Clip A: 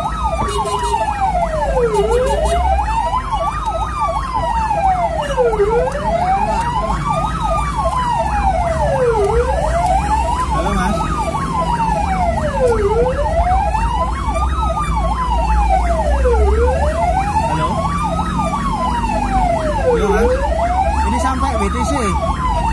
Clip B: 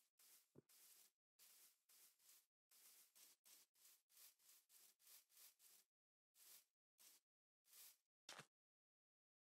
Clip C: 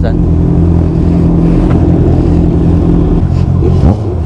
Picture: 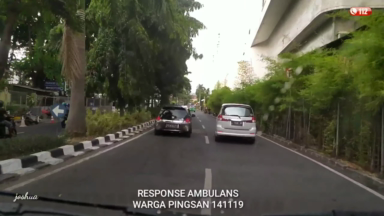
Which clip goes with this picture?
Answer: A